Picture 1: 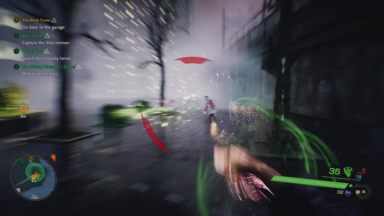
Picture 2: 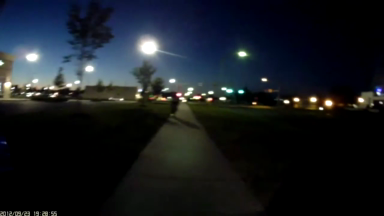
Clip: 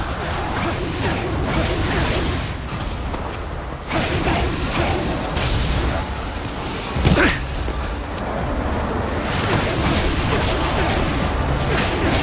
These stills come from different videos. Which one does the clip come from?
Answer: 1